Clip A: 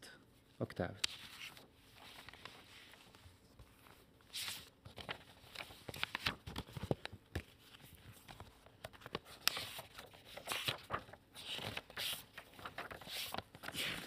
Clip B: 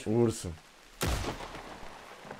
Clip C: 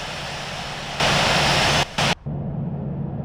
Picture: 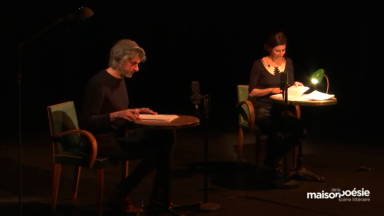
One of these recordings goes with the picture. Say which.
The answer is A